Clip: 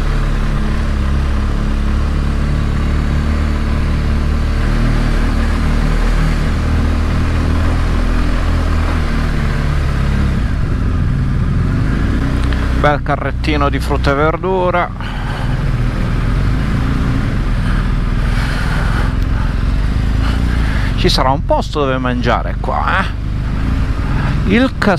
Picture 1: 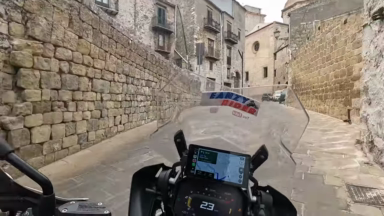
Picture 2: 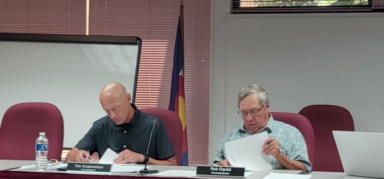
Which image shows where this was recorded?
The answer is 1